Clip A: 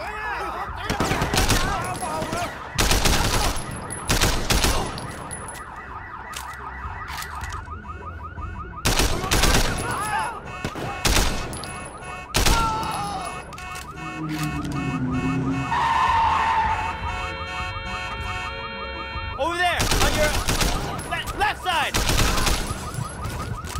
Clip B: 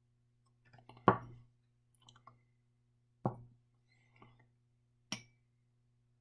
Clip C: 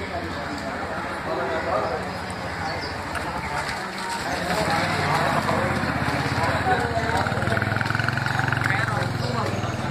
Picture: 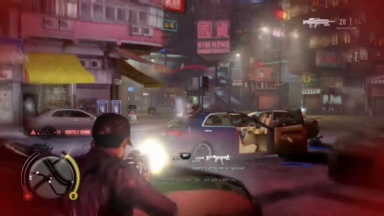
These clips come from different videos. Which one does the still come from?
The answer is A